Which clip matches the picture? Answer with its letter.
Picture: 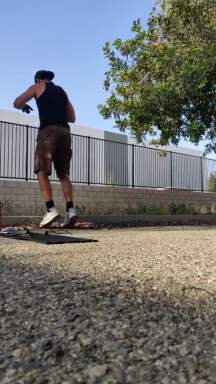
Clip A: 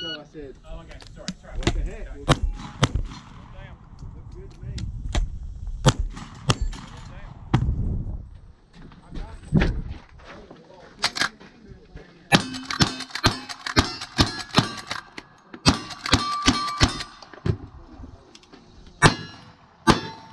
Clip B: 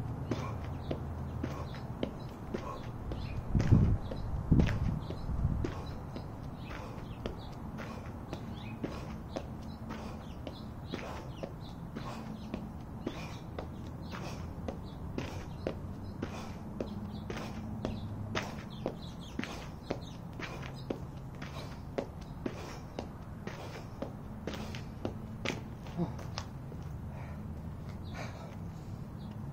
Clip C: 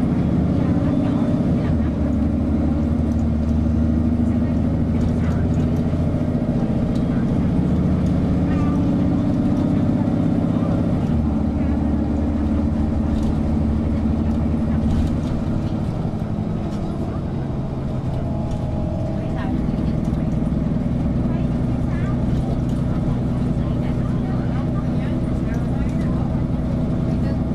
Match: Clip B